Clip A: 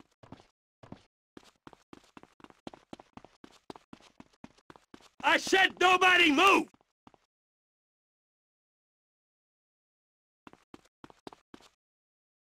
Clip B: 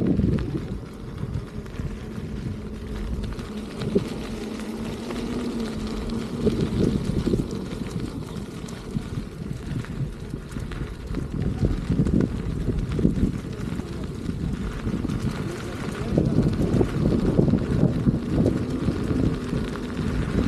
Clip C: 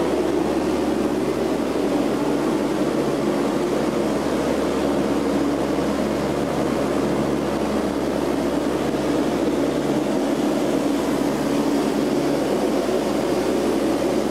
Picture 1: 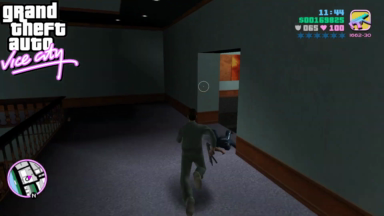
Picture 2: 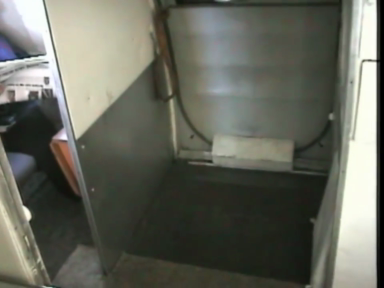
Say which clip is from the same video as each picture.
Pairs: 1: A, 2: C